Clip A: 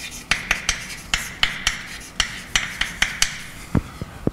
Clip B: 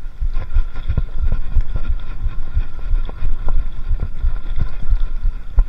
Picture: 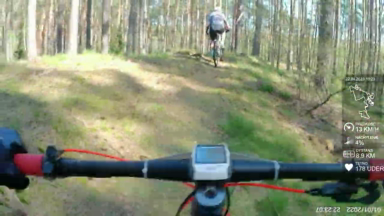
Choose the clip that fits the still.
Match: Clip B